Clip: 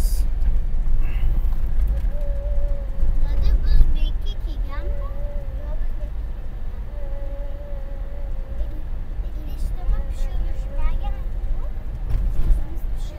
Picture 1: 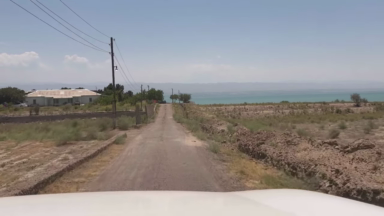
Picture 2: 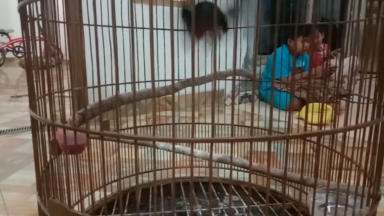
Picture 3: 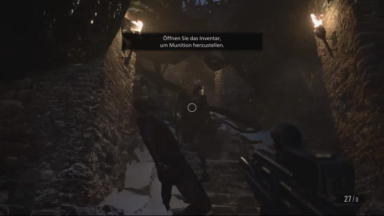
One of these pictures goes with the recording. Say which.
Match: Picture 1